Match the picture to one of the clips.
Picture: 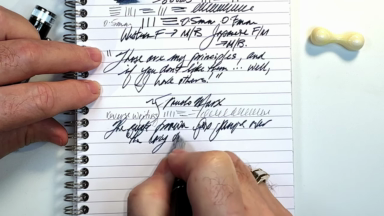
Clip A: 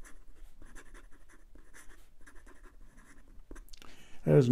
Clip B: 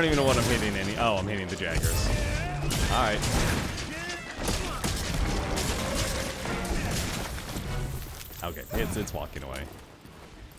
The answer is A